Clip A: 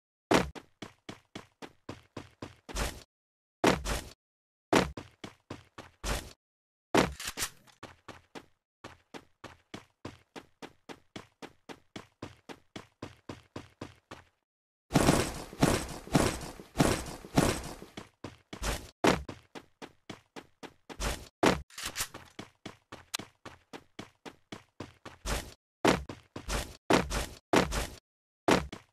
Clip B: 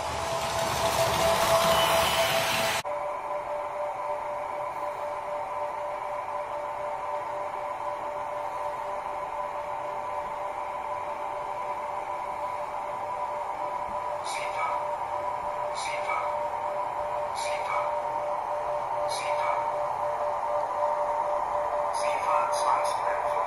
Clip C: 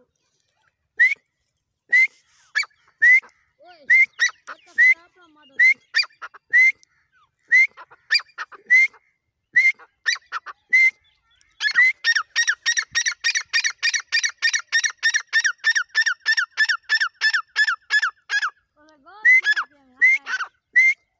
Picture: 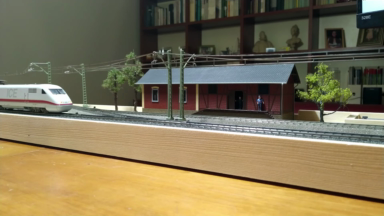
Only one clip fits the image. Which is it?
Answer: B